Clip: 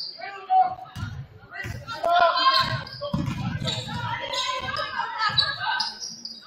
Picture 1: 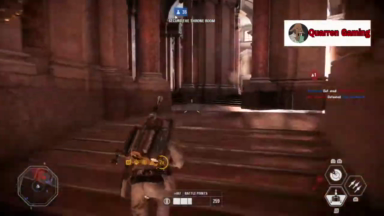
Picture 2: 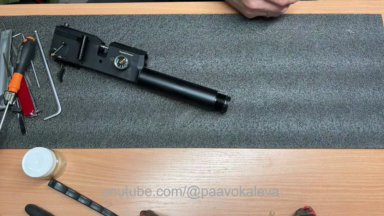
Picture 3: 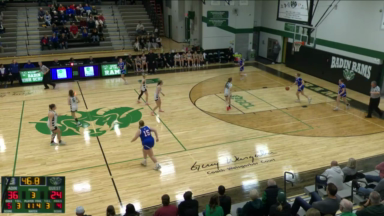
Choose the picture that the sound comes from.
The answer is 3